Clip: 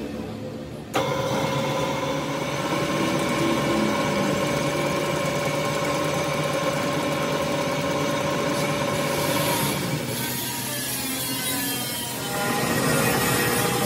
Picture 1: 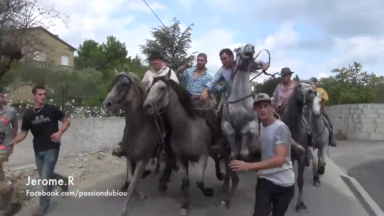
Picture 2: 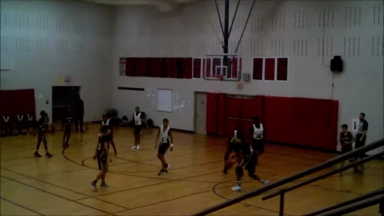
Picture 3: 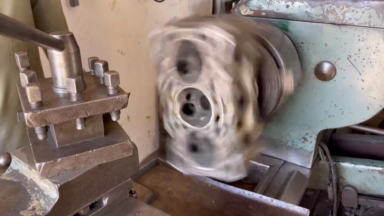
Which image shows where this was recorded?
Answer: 3